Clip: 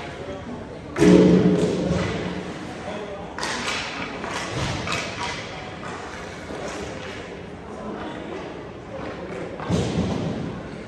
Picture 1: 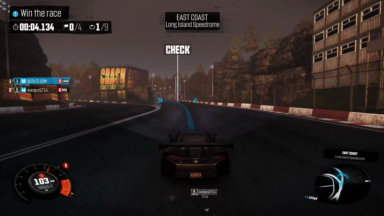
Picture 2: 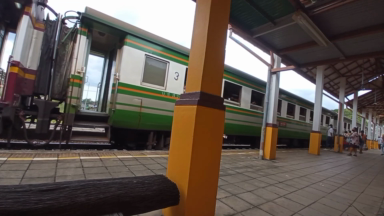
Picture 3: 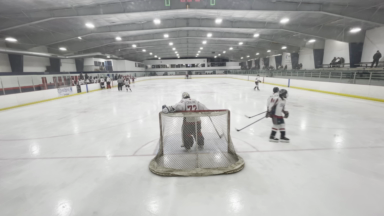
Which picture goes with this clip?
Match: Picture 3